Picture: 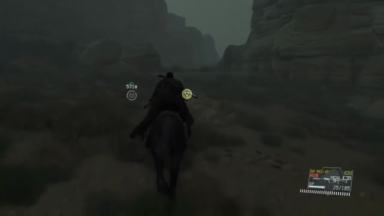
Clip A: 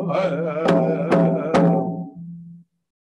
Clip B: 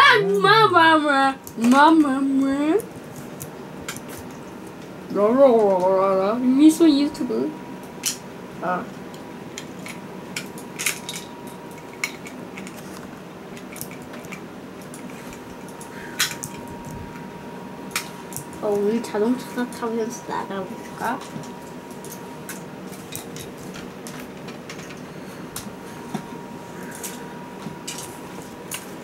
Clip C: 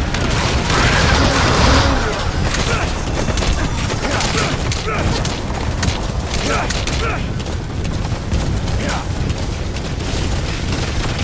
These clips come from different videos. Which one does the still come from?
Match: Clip C